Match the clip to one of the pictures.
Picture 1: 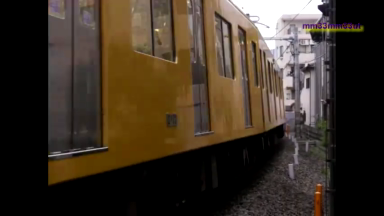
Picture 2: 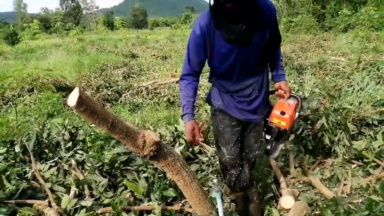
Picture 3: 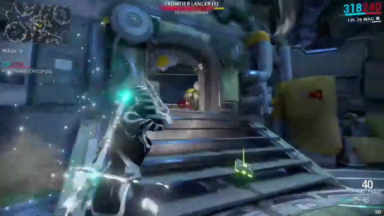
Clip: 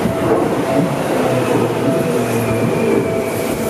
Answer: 1